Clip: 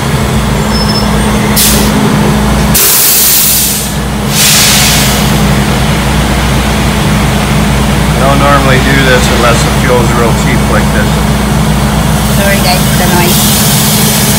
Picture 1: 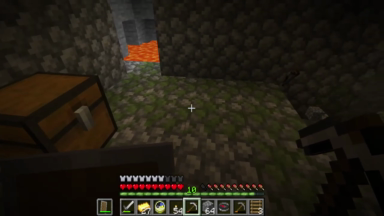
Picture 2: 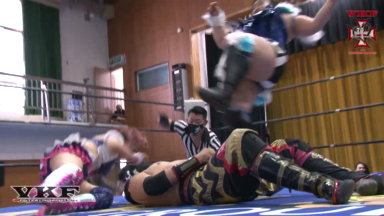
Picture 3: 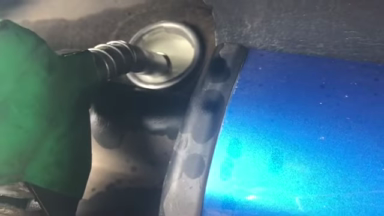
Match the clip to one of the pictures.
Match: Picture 3